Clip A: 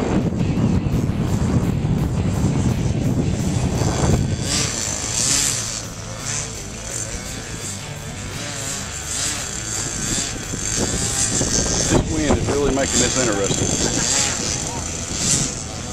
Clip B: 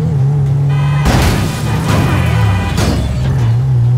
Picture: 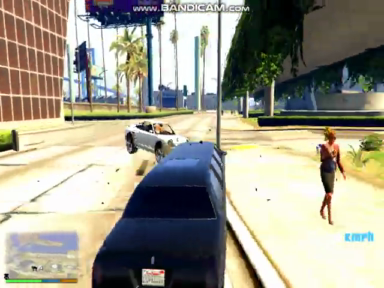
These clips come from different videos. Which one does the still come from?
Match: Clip B